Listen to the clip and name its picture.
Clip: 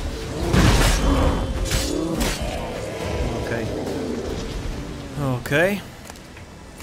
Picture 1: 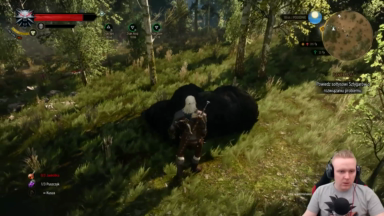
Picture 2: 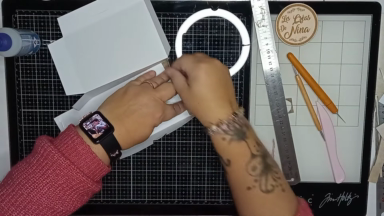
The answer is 1